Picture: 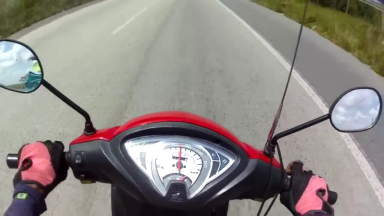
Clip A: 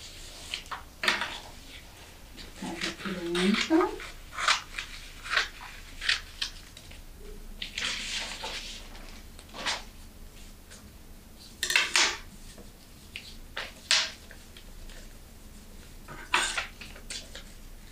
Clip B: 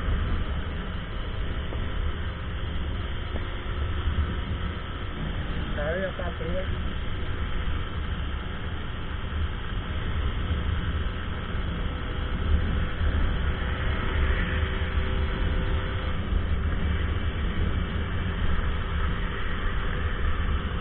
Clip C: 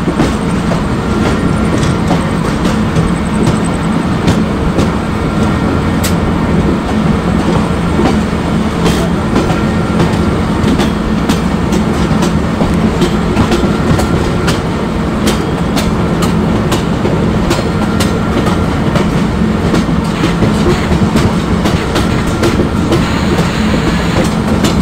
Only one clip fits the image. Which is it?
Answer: B